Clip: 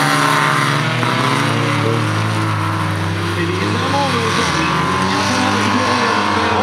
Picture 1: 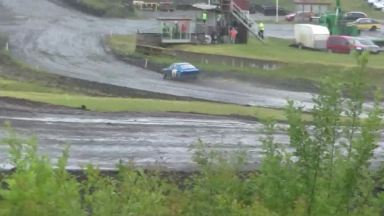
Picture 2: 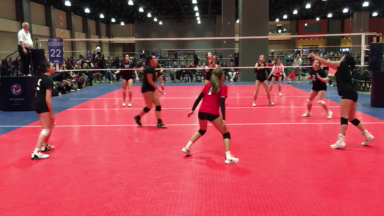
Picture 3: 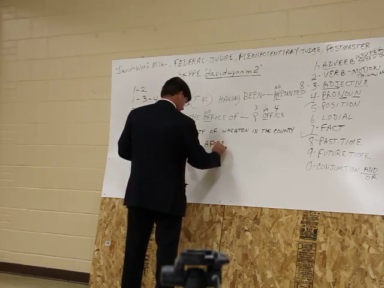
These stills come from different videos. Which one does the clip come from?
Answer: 1